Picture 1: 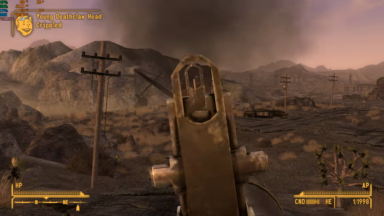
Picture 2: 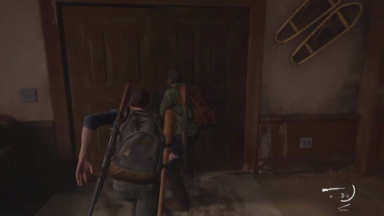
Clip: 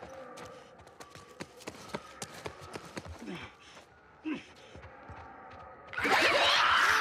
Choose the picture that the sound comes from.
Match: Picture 2